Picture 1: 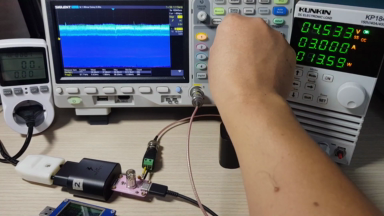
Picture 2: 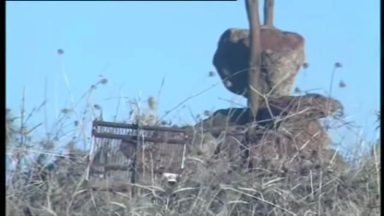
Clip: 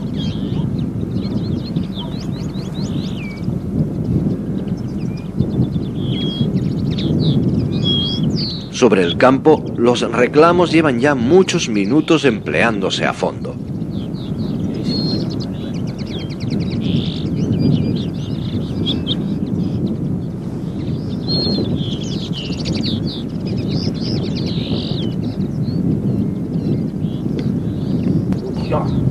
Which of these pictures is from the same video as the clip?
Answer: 2